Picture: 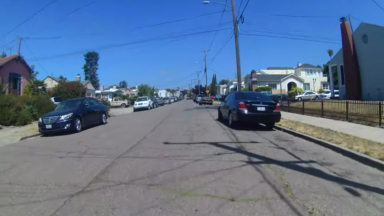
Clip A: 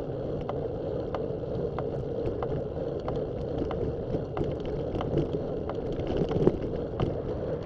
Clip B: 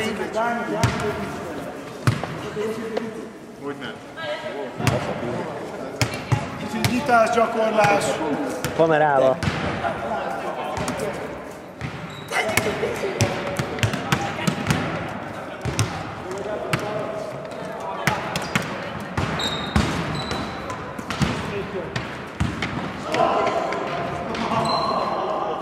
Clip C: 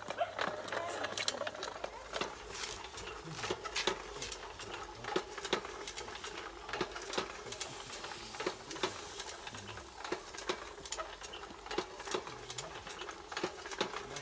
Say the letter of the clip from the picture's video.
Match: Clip A